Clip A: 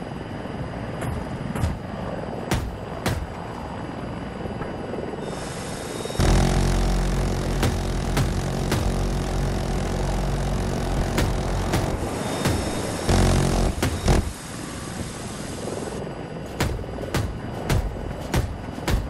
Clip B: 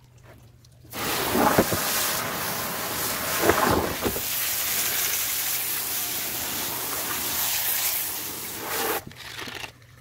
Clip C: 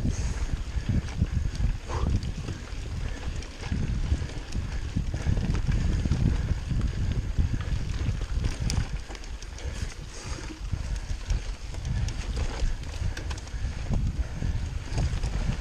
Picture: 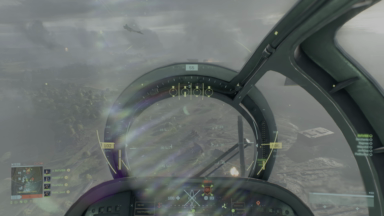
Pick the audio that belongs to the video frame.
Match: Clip A